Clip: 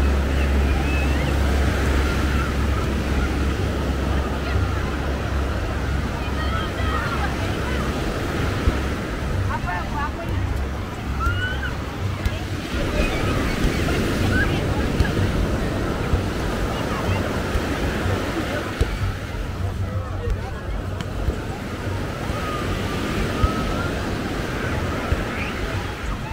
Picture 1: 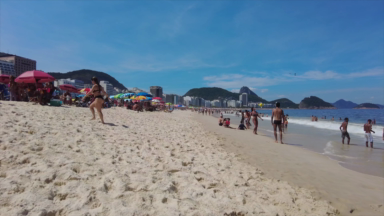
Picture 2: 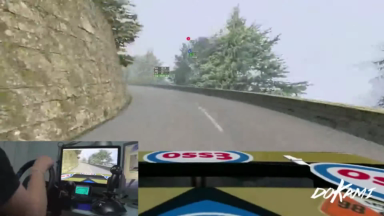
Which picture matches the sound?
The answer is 1